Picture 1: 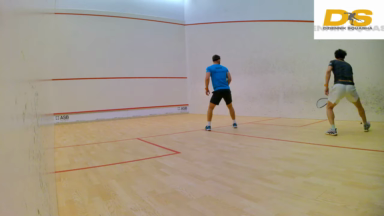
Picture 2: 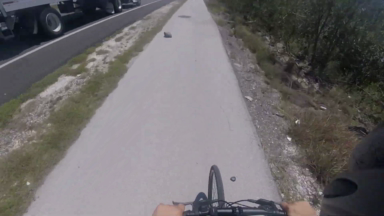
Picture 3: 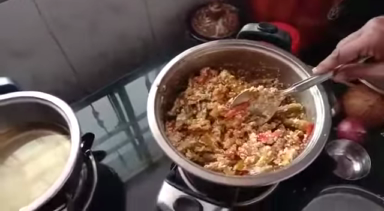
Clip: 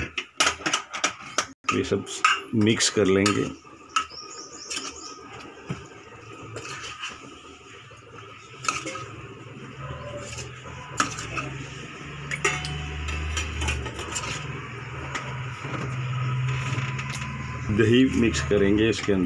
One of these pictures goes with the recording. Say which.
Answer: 3